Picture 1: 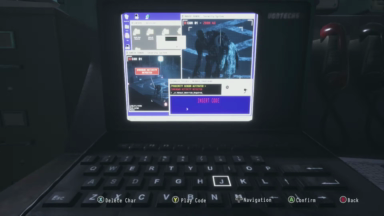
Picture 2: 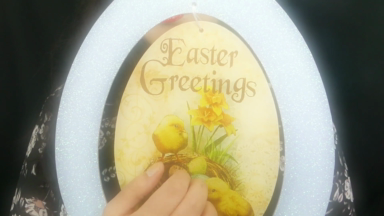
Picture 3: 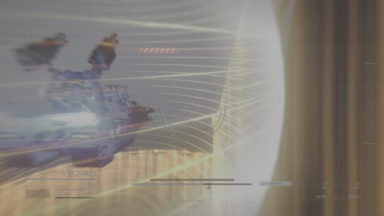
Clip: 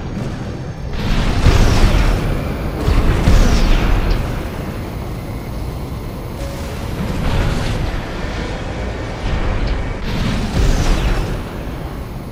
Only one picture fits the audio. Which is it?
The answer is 3